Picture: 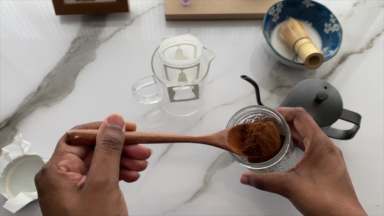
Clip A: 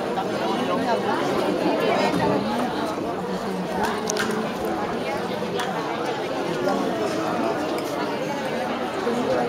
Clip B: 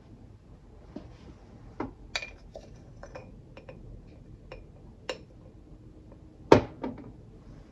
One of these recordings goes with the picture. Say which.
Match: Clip B